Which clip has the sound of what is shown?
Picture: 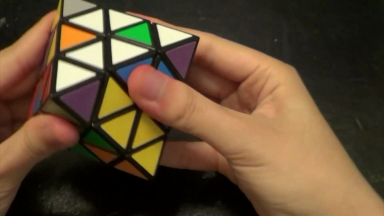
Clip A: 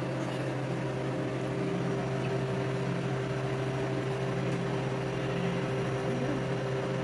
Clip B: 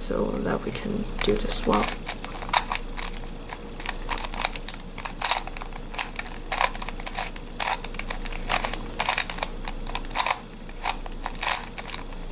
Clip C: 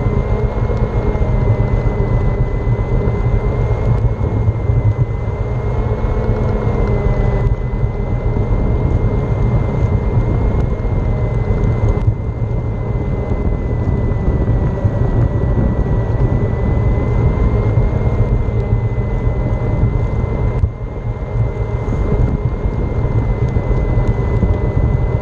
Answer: B